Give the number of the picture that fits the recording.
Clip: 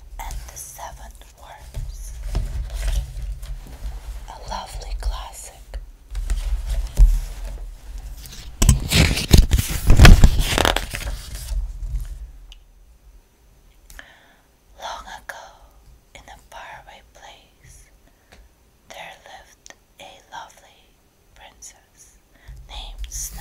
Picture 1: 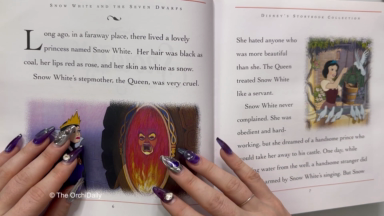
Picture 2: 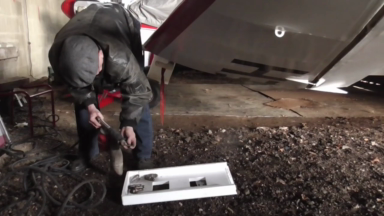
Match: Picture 1